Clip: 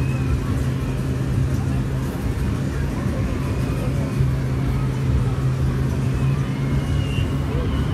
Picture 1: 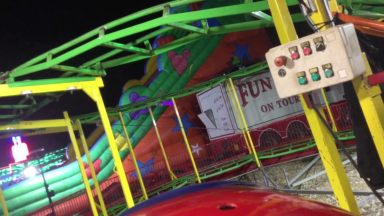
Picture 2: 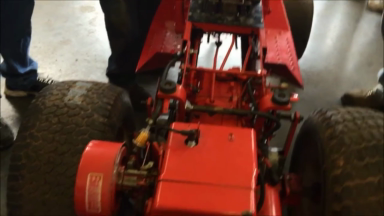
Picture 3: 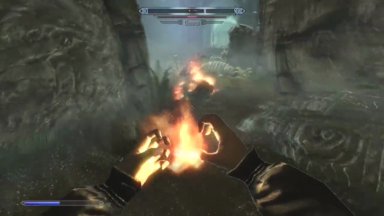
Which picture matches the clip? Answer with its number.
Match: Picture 1